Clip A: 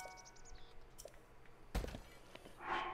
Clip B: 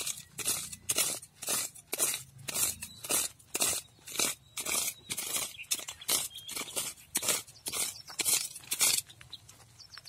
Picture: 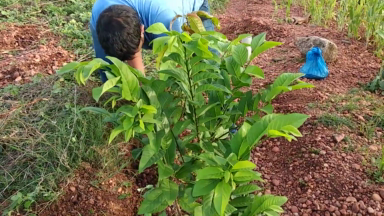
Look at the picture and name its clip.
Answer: B